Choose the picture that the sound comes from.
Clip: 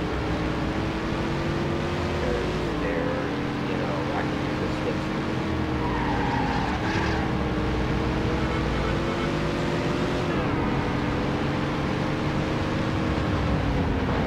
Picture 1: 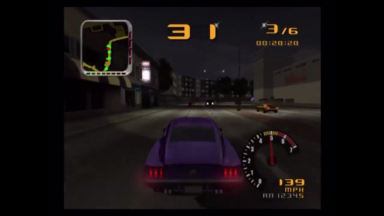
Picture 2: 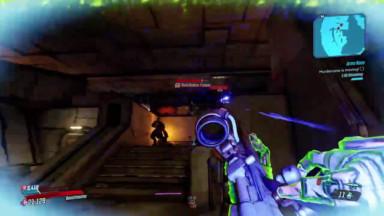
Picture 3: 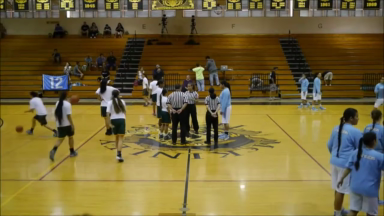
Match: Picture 1